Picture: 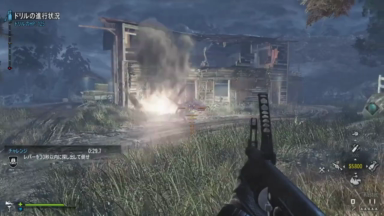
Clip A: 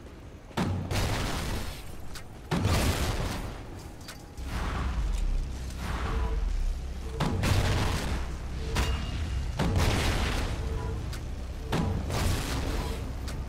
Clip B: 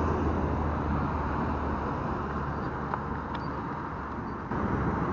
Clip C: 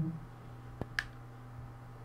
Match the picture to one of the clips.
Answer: A